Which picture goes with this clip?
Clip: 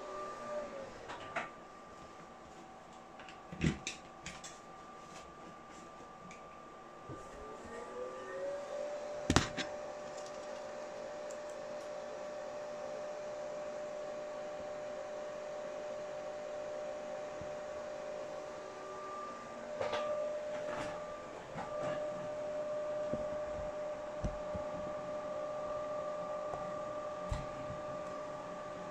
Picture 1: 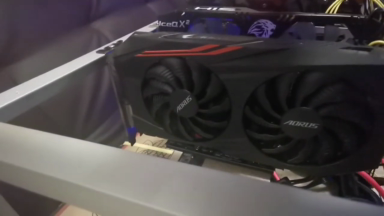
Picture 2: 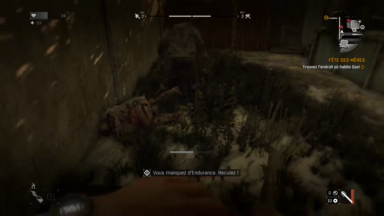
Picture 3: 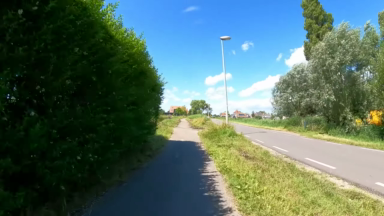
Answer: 1